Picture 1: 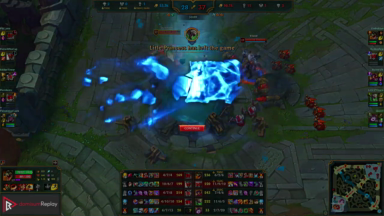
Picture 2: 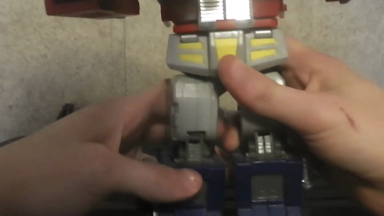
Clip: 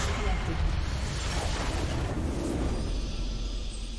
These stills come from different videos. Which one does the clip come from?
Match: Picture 1